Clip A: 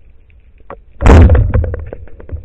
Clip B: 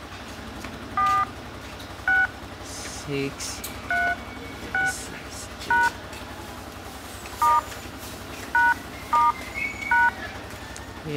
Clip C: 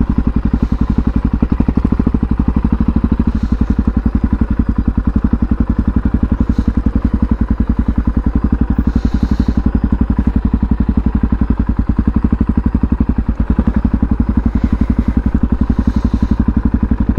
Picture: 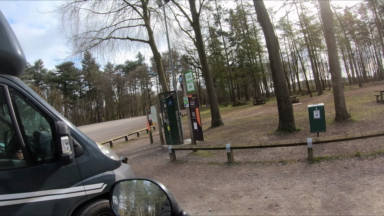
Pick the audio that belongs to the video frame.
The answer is C